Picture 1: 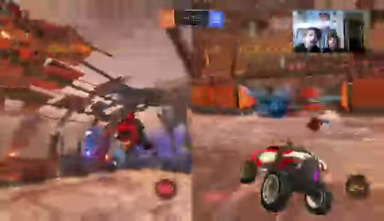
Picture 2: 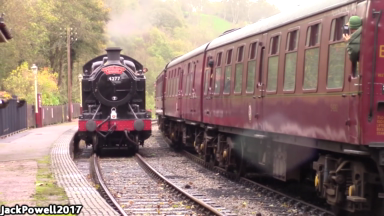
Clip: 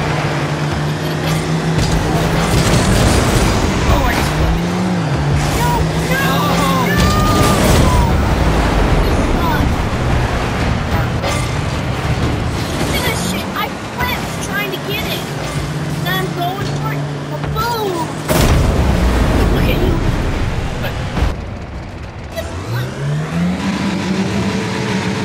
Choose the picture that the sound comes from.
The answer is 1